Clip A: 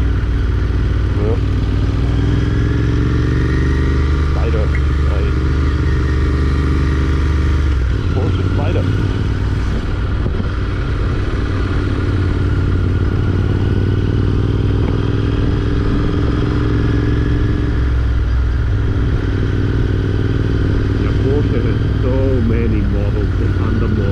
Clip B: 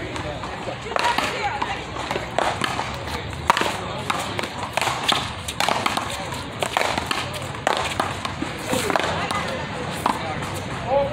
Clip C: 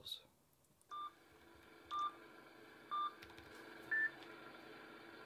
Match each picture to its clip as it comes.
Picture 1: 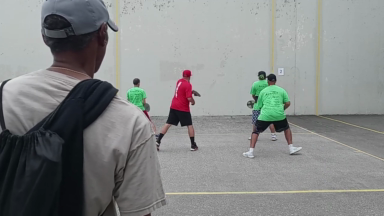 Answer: B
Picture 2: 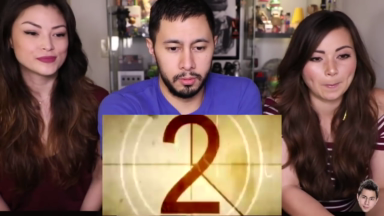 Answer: C